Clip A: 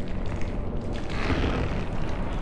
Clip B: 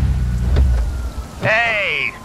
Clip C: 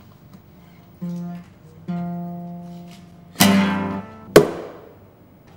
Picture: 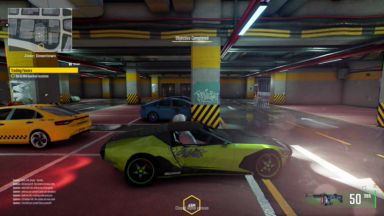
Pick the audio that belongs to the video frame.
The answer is B